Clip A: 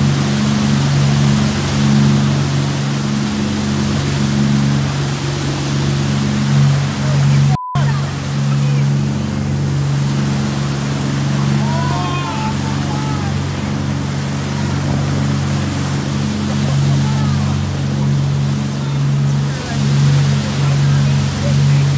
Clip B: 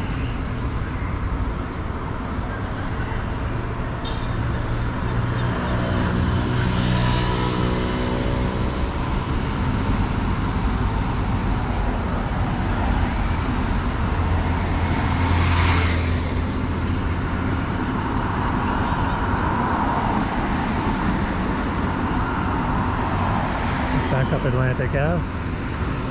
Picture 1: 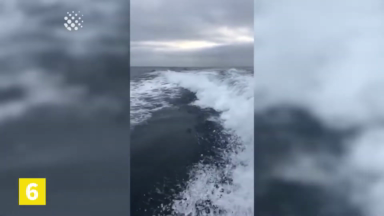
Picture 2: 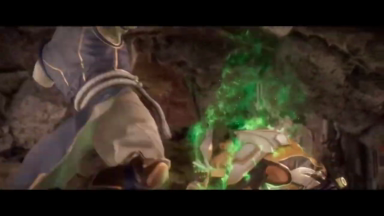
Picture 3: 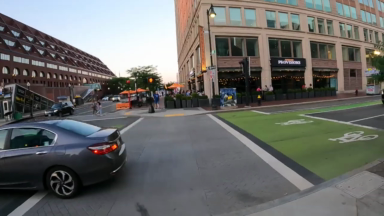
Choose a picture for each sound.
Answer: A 1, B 3